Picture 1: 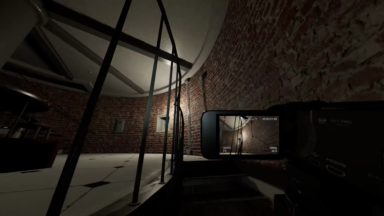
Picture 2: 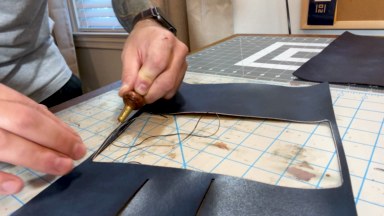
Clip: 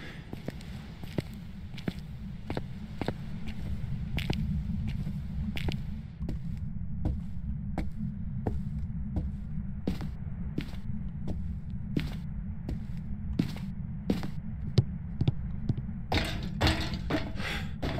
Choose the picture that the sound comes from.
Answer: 1